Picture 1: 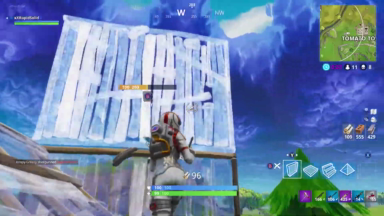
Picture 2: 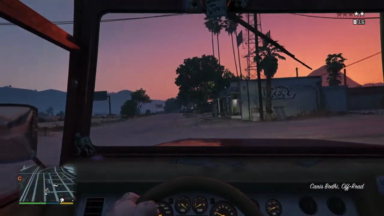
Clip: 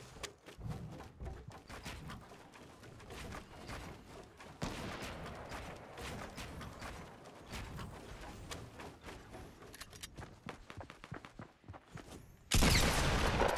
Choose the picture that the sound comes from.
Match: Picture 1